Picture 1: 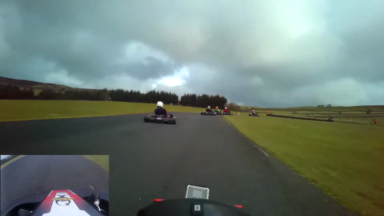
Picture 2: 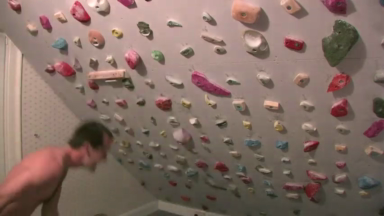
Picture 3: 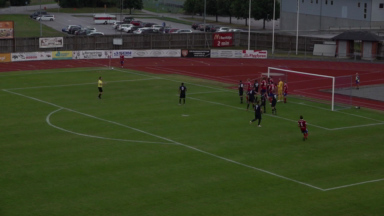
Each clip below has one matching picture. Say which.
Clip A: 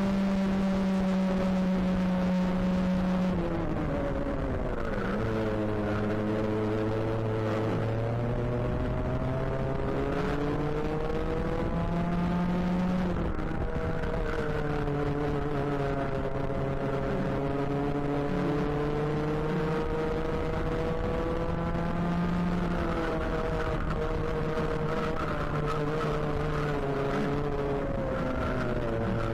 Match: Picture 1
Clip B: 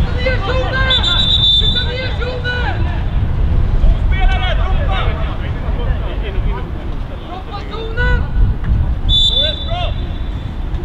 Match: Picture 3